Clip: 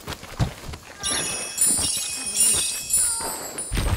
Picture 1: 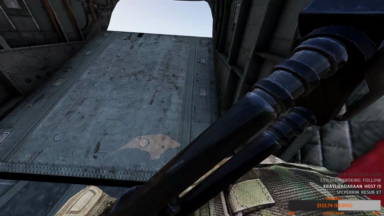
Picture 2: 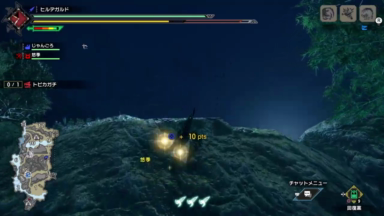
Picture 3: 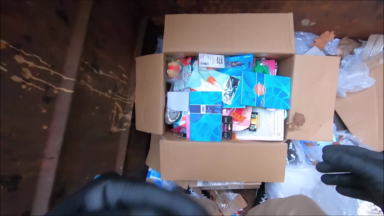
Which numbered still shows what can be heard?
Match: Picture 2